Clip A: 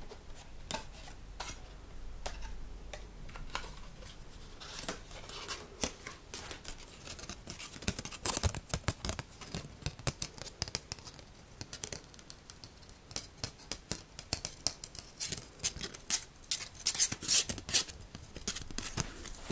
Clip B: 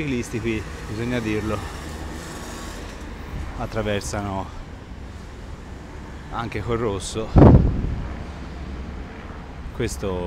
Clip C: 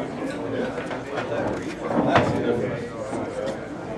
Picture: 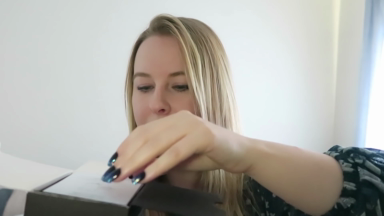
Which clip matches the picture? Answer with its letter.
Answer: A